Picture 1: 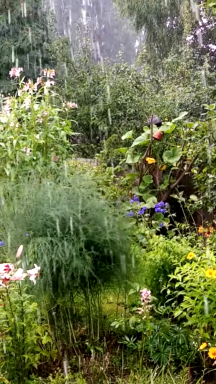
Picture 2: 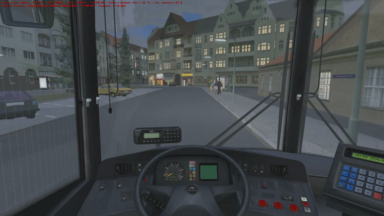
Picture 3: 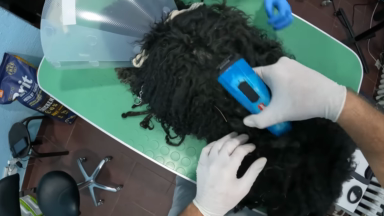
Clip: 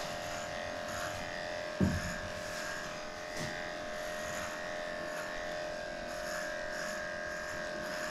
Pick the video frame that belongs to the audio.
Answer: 3